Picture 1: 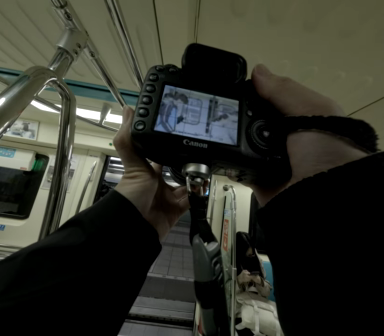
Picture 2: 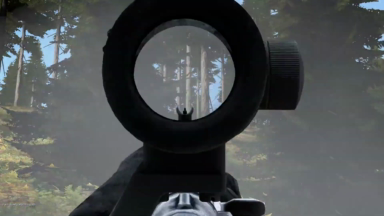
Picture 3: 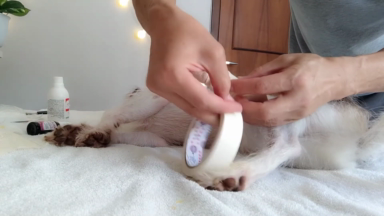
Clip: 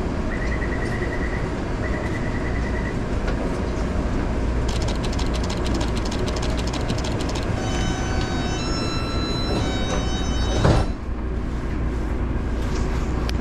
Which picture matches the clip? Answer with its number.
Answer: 1